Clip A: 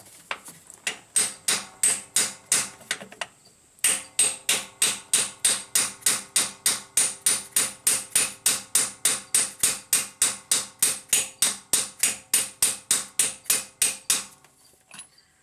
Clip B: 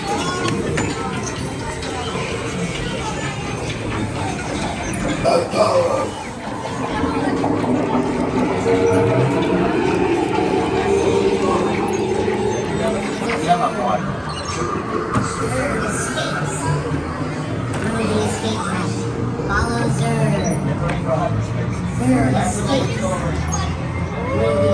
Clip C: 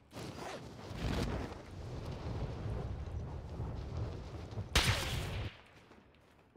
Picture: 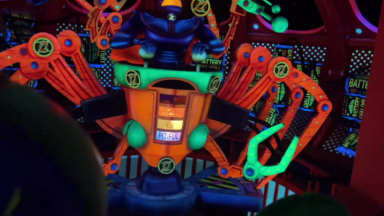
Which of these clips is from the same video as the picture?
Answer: B